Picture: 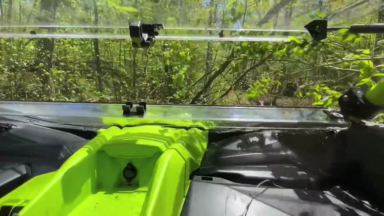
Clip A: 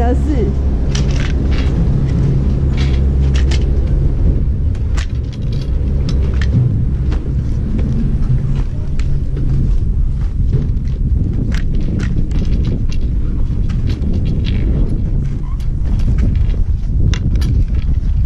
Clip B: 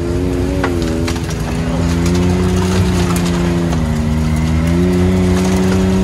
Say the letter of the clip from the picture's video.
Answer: B